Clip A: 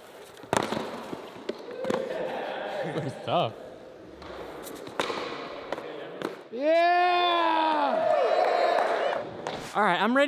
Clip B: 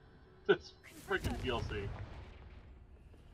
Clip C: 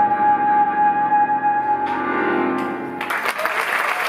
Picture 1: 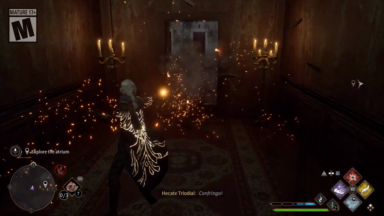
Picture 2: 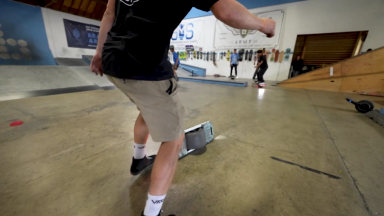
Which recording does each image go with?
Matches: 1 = B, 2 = A